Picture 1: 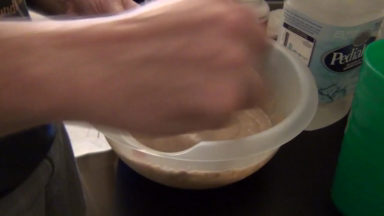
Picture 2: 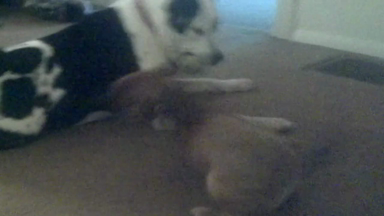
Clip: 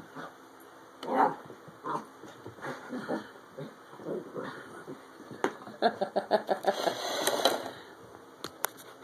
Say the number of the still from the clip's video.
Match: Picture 2